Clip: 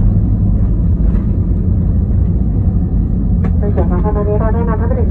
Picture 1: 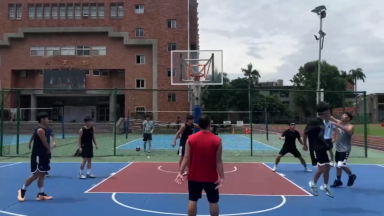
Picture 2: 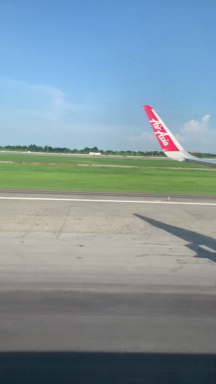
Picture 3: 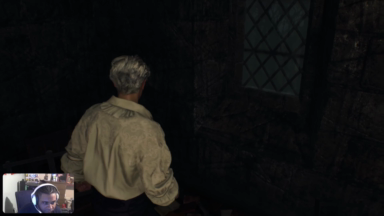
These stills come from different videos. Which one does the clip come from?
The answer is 2